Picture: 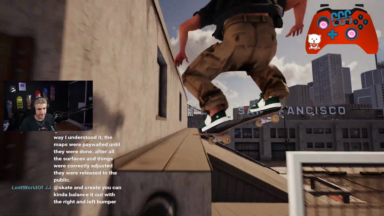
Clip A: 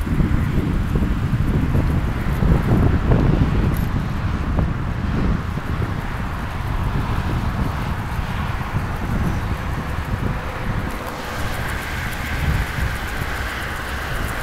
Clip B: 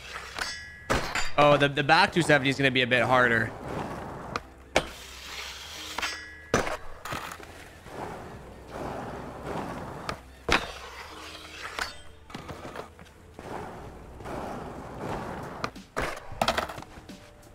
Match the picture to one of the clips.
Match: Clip B